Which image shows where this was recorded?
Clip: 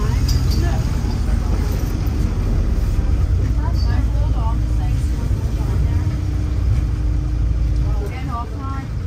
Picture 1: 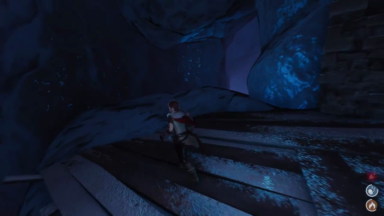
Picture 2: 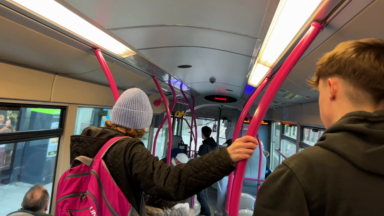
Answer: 2